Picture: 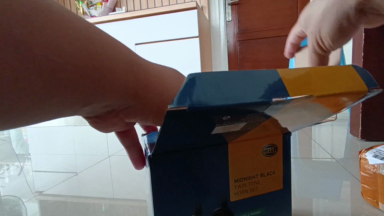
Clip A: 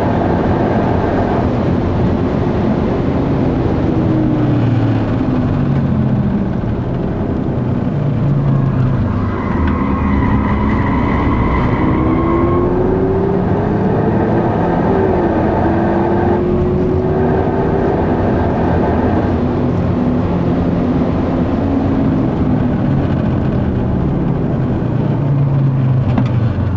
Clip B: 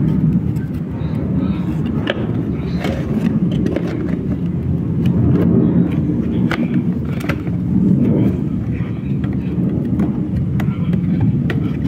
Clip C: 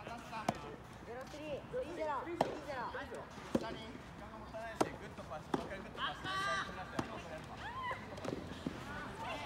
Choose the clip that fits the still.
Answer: B